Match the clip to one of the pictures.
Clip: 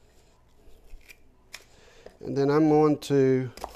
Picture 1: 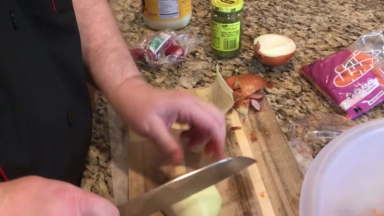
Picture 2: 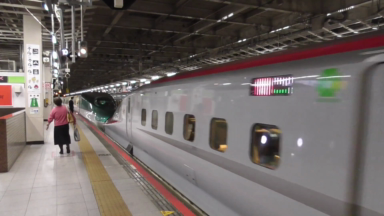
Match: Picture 1